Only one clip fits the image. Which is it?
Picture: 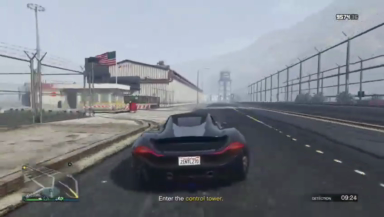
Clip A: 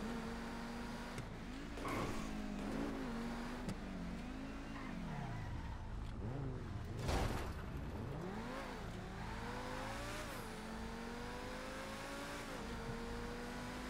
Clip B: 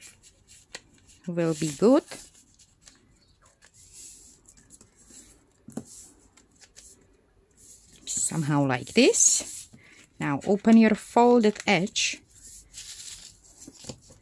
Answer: A